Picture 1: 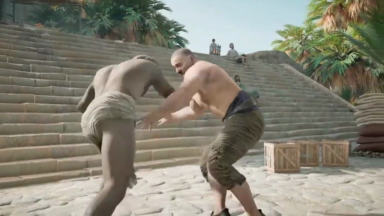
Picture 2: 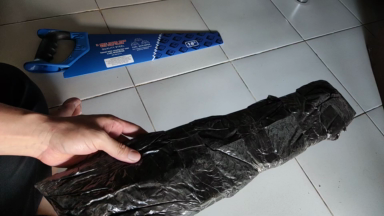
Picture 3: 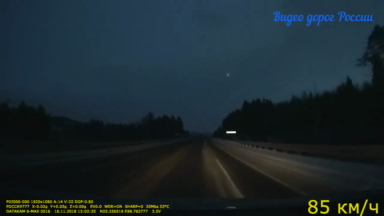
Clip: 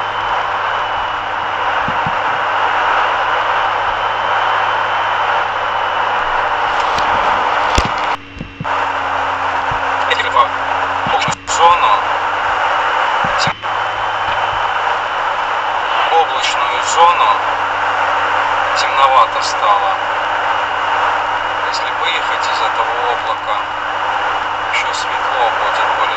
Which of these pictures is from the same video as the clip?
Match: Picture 3